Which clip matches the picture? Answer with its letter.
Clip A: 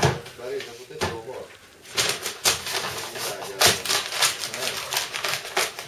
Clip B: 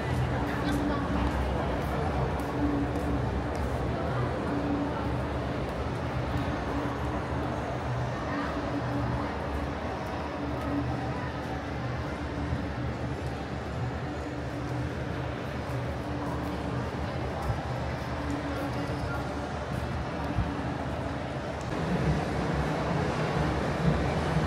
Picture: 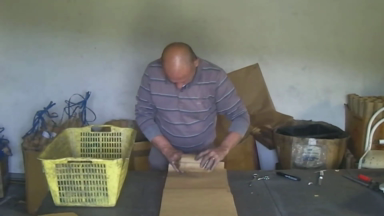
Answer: A